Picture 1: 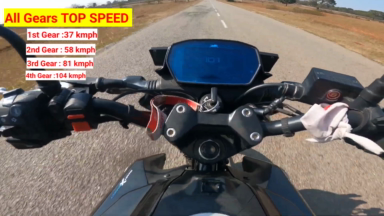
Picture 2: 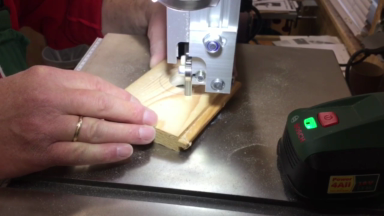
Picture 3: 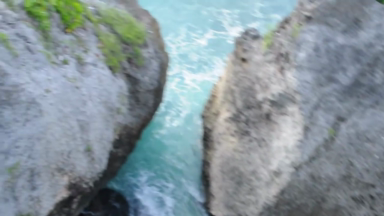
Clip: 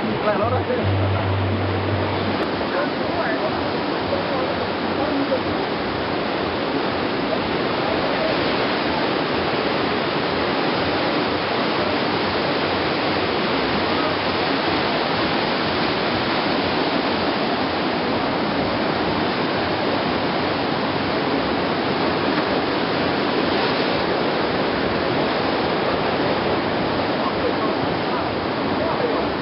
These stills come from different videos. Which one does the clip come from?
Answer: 3